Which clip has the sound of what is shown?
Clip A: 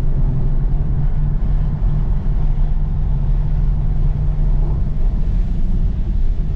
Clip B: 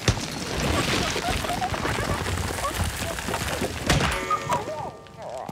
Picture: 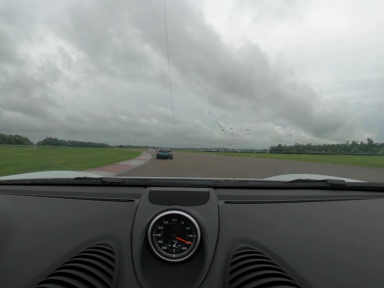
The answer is A